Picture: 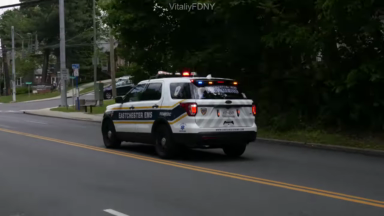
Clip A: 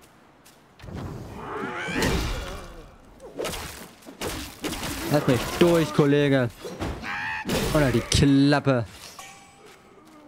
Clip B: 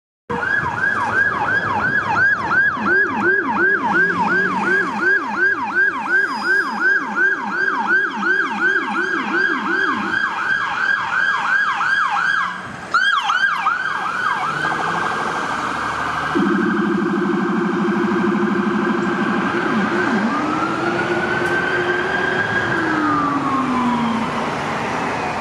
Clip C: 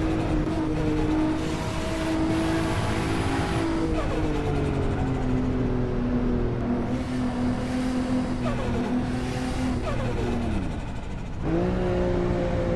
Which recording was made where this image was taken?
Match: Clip B